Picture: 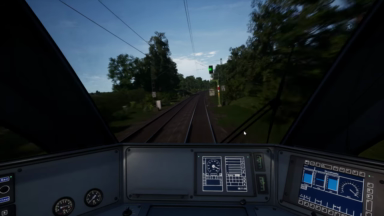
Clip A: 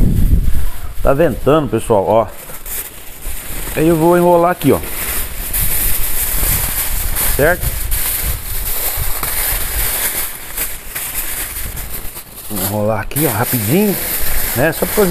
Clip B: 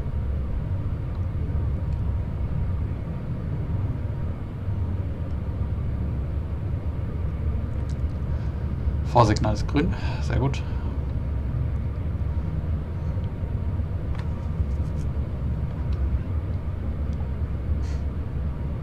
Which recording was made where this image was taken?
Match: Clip B